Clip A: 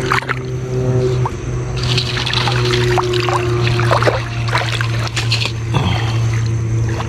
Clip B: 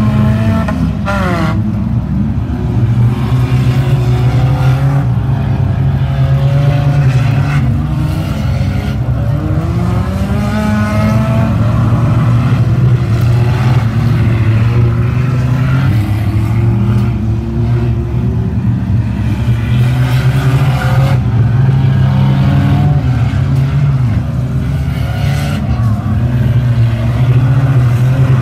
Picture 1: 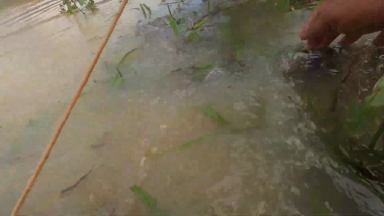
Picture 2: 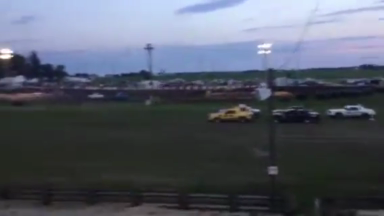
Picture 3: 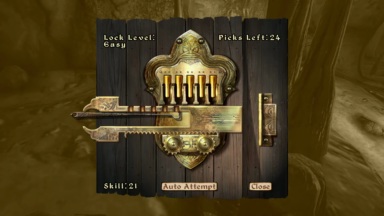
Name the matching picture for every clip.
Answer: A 1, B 2